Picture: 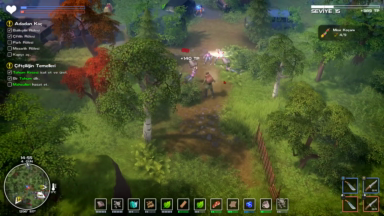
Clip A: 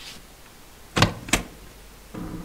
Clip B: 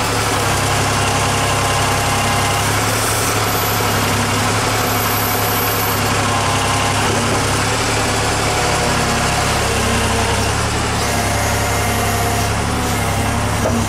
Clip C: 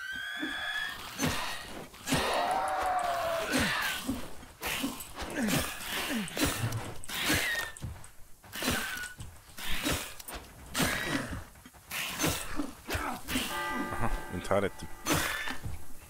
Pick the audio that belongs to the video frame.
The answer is C